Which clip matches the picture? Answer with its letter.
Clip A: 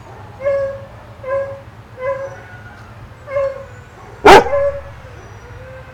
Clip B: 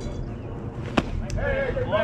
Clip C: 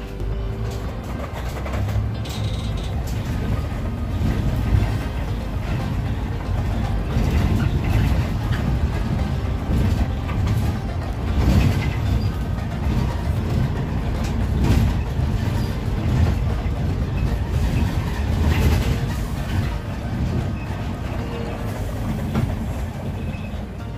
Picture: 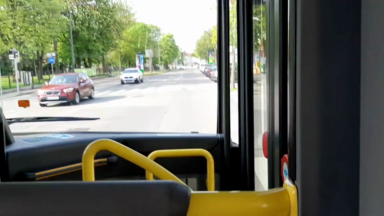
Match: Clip C